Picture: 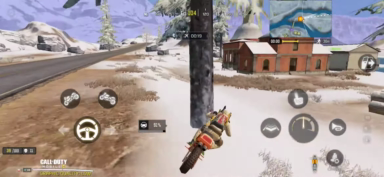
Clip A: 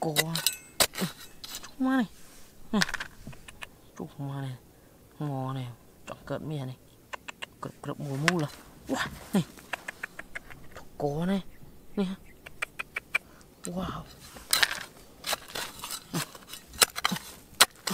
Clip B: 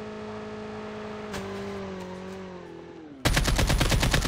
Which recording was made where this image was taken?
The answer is B